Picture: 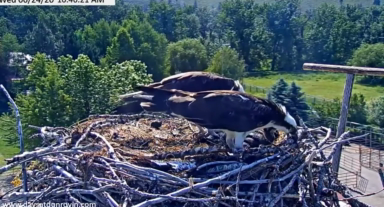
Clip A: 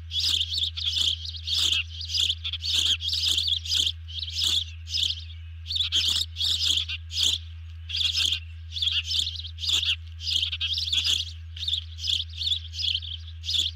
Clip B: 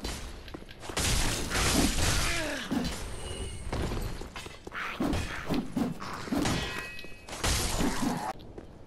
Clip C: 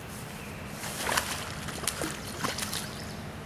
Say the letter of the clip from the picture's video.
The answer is A